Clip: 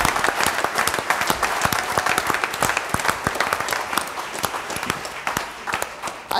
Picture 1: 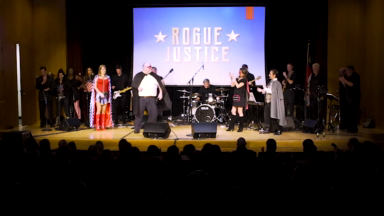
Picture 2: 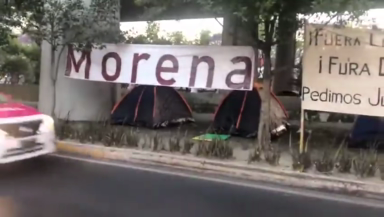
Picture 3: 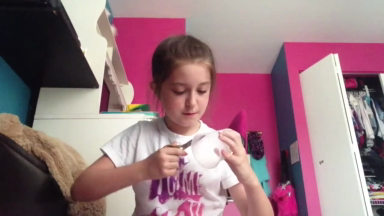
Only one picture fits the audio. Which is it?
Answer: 1